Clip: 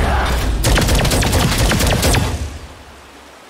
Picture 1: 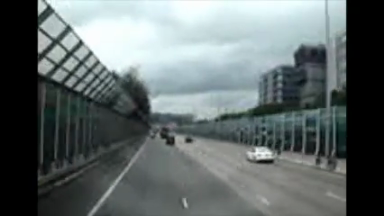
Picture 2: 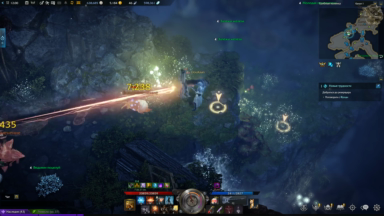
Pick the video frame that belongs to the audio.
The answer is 2